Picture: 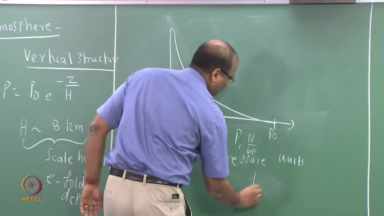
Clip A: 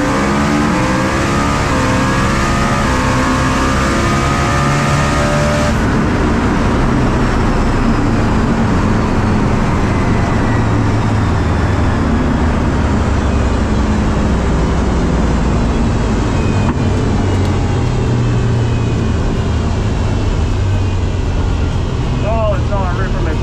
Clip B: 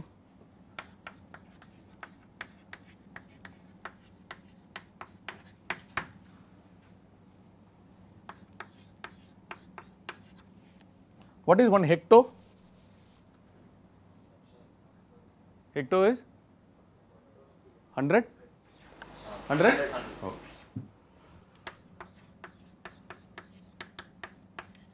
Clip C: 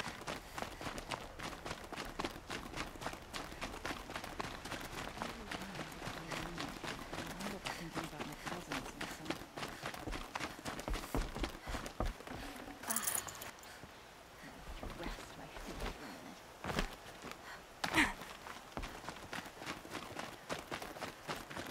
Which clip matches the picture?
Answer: B